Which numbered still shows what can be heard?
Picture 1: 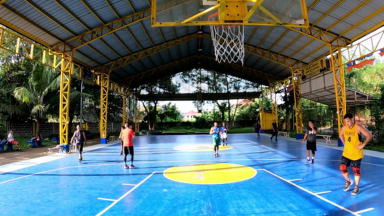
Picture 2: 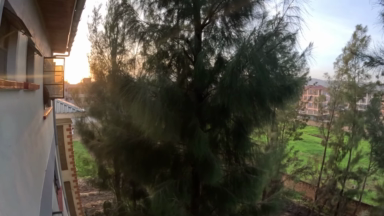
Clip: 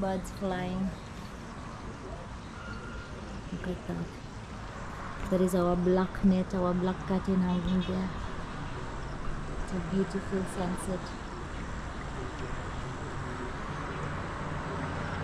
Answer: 2